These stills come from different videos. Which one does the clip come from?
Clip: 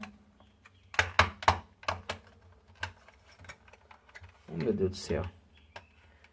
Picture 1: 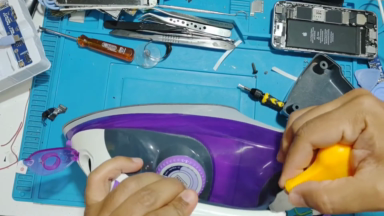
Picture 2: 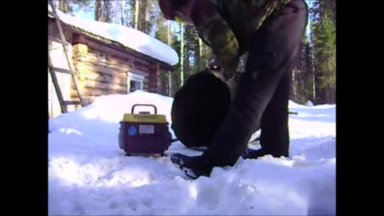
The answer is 1